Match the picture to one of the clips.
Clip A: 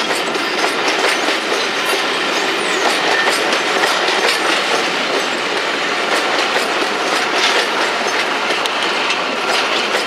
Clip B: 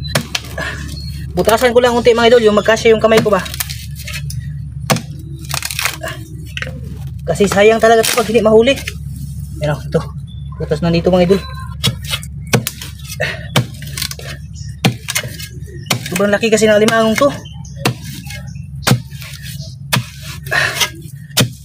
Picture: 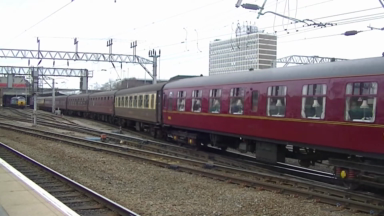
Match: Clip A